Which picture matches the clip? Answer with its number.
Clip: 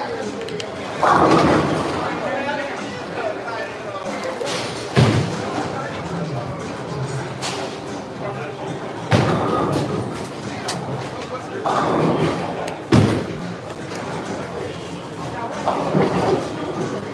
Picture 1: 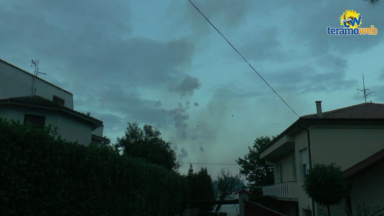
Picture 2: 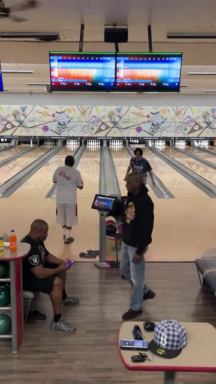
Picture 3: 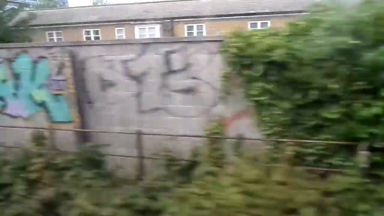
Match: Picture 2